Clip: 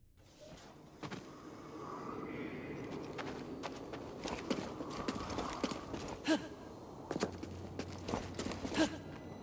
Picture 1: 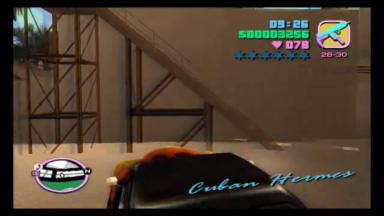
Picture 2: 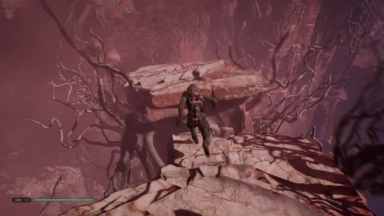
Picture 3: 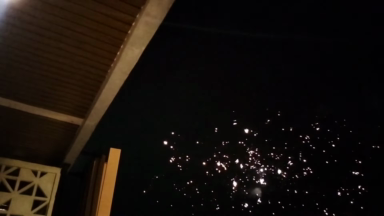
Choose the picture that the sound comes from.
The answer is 2